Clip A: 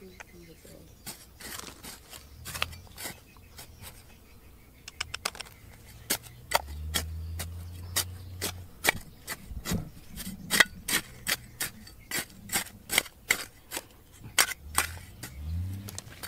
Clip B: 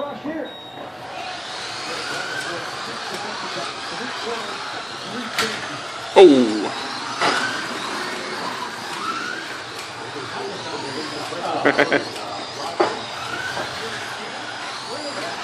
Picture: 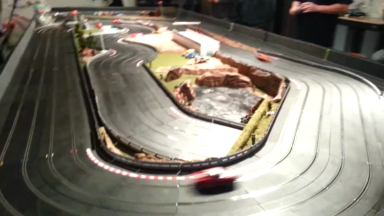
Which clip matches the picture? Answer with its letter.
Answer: B